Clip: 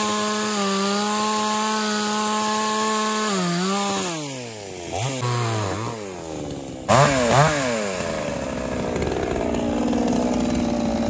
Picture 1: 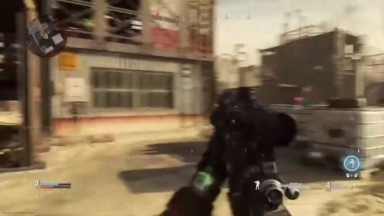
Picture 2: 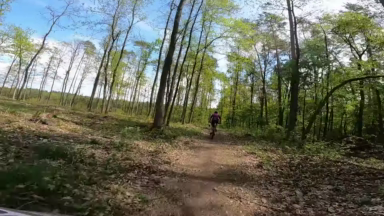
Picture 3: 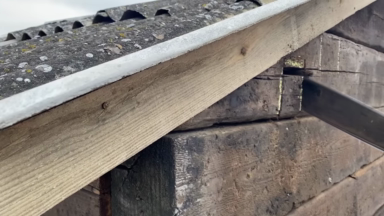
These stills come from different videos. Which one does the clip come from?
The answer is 3